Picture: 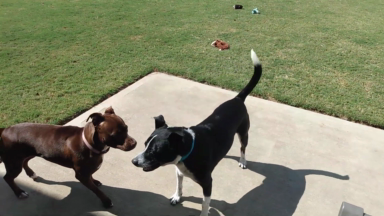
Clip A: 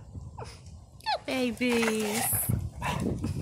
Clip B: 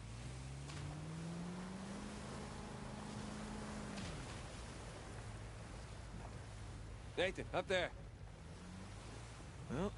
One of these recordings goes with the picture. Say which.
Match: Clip A